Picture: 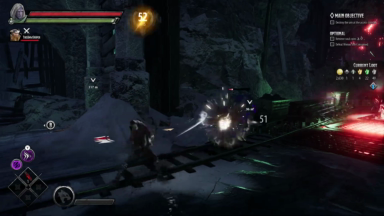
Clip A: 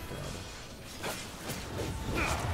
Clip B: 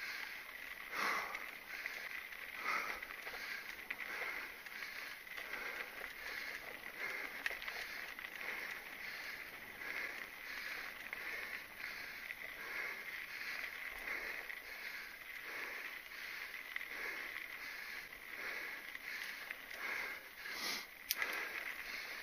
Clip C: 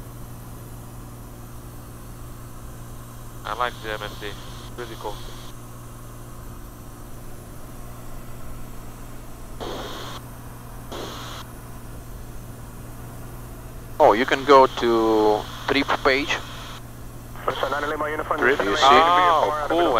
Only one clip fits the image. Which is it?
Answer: A